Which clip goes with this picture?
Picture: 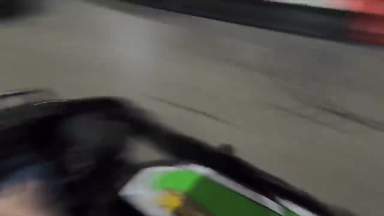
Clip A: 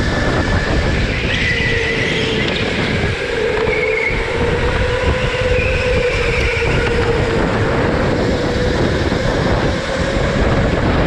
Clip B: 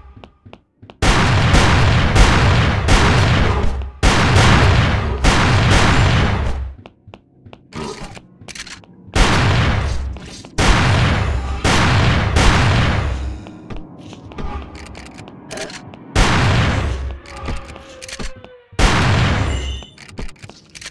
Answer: A